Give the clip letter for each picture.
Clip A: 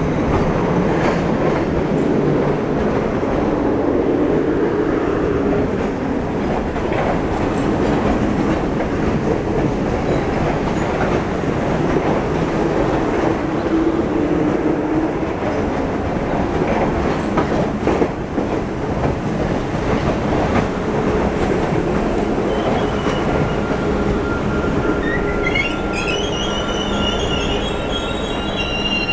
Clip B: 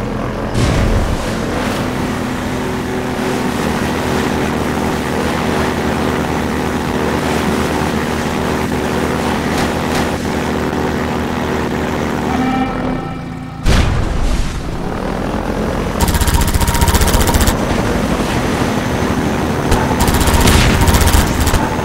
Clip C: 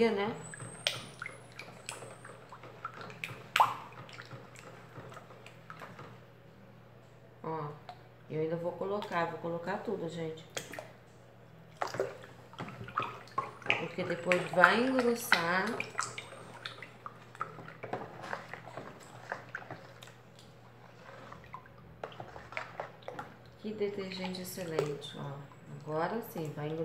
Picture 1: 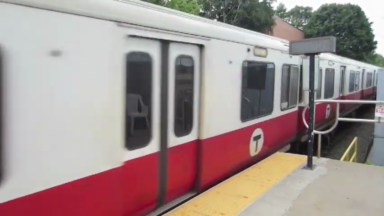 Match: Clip A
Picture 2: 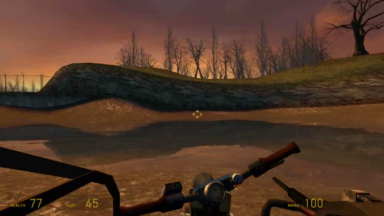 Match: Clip B